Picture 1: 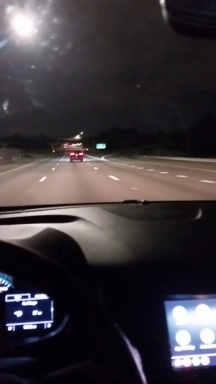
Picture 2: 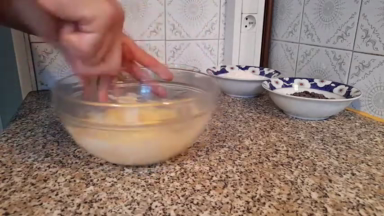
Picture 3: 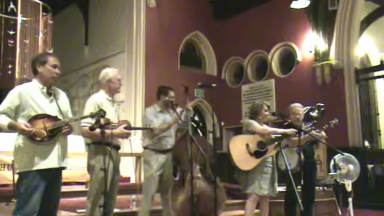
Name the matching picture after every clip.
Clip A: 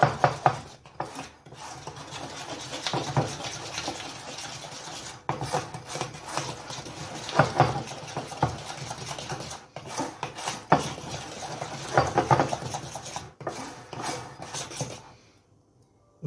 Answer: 2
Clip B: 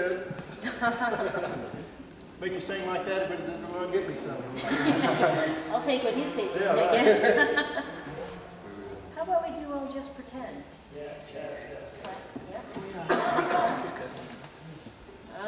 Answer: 3